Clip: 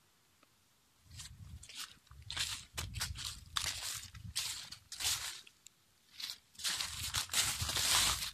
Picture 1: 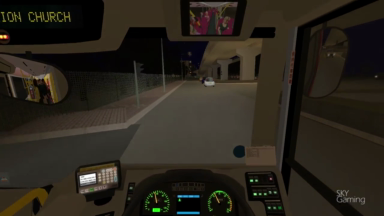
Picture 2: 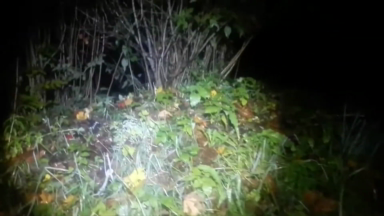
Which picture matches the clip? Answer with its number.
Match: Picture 2